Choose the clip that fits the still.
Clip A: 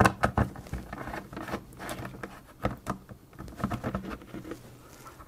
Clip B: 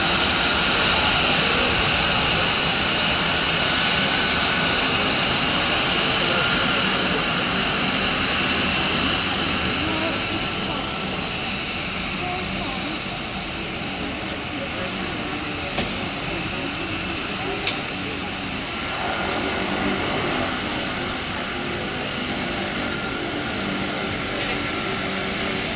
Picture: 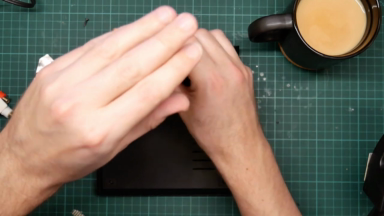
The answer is A